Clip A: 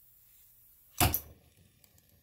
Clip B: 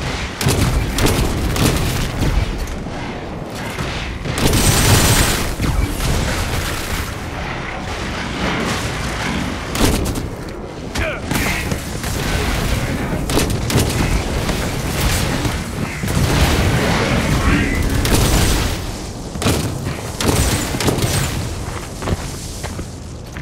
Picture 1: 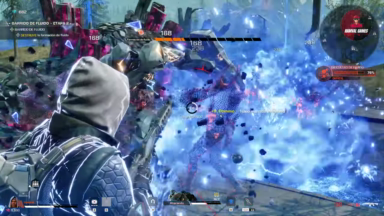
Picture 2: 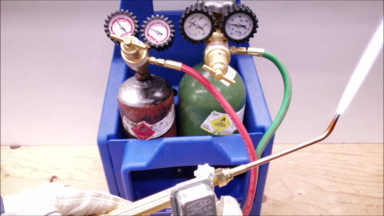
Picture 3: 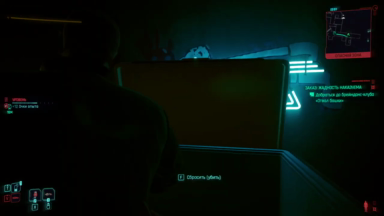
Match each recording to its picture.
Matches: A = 2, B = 1